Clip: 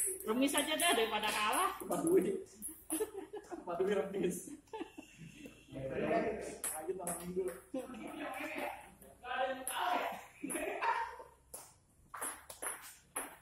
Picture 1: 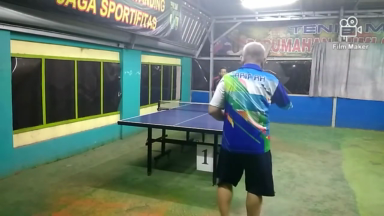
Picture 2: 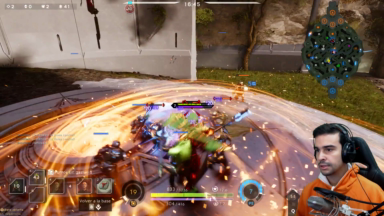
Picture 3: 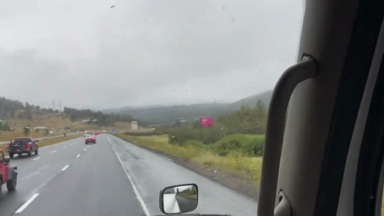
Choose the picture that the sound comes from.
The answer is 1